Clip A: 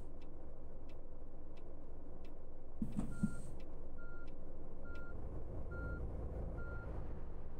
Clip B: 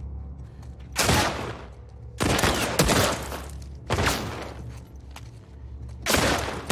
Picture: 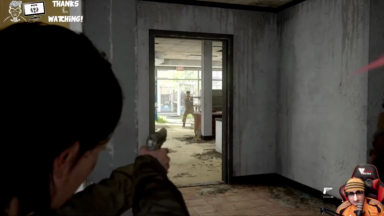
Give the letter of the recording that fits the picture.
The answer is B